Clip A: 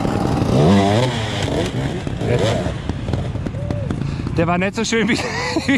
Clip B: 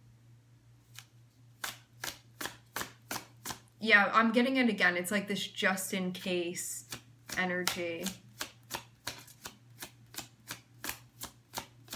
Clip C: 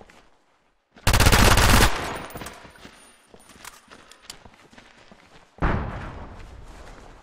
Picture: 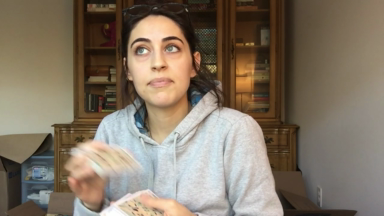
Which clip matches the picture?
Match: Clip B